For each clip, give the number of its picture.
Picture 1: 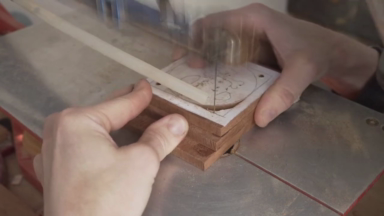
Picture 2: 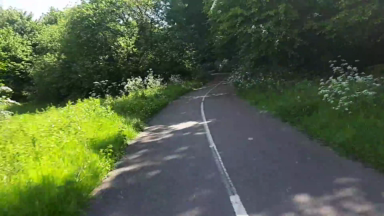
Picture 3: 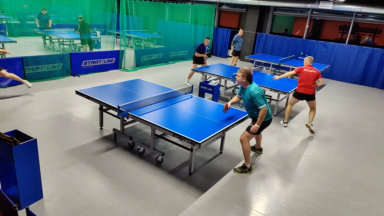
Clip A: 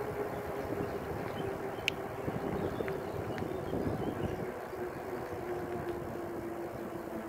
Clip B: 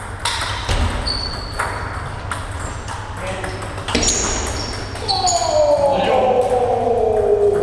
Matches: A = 2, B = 3